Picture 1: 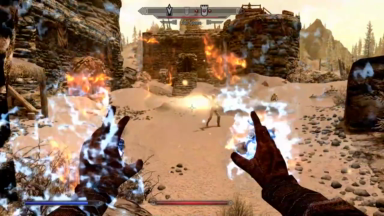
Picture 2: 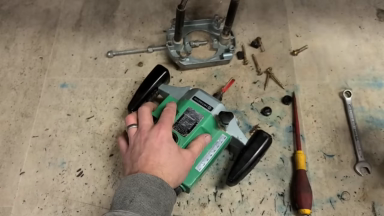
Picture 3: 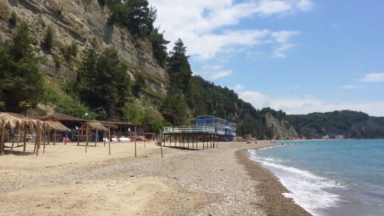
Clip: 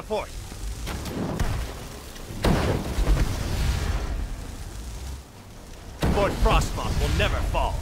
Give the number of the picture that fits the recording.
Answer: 1